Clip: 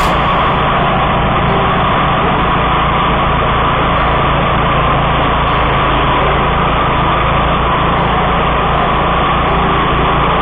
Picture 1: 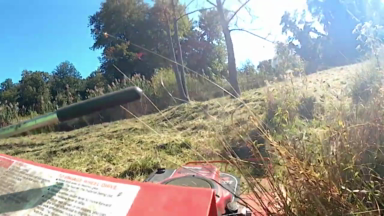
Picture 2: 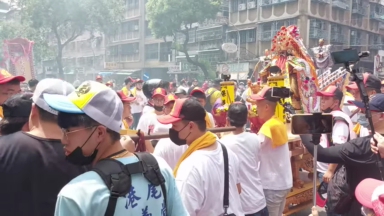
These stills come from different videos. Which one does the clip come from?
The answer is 1